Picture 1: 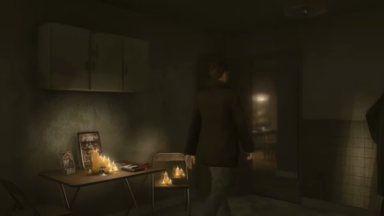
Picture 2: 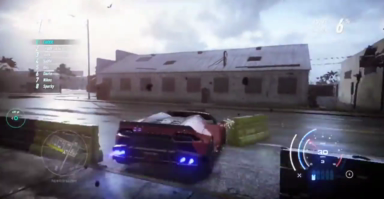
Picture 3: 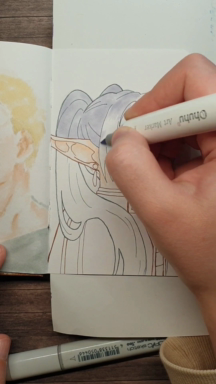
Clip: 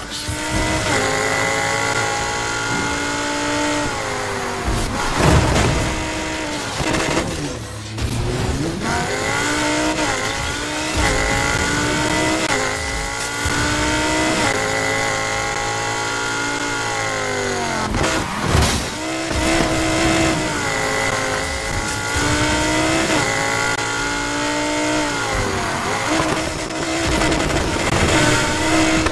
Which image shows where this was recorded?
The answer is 2